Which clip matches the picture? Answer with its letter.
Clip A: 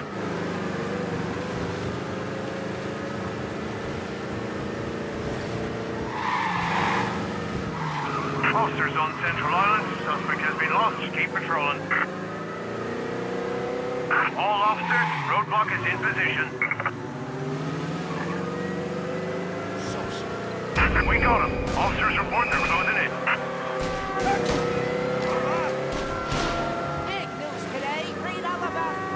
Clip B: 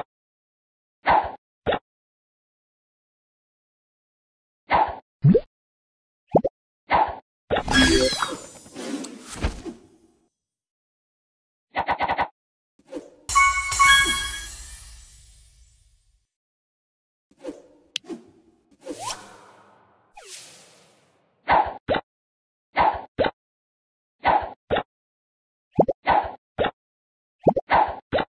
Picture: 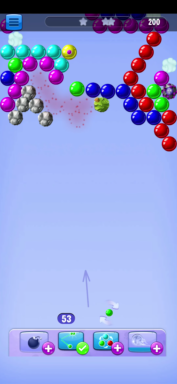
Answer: B